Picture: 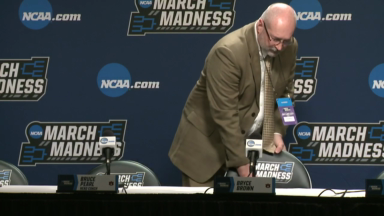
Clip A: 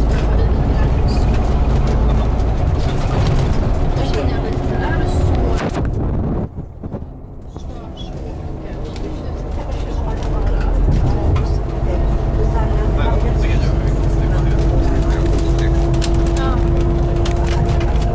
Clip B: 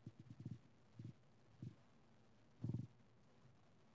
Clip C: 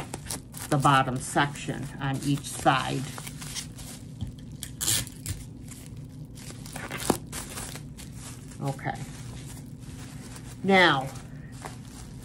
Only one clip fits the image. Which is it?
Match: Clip B